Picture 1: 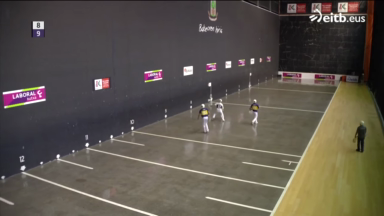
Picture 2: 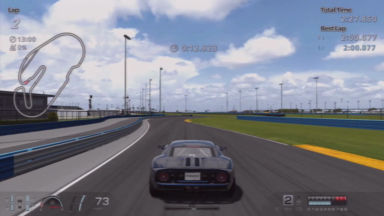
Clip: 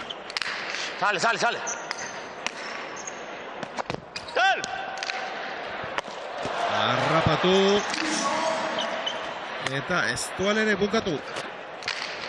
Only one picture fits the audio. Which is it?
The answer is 1